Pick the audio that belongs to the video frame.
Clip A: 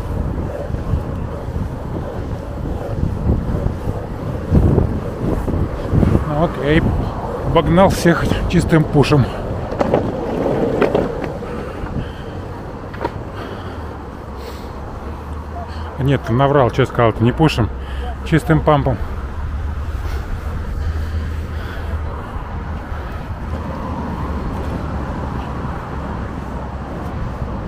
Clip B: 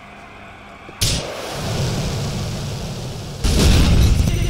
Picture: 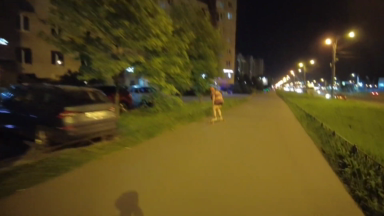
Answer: A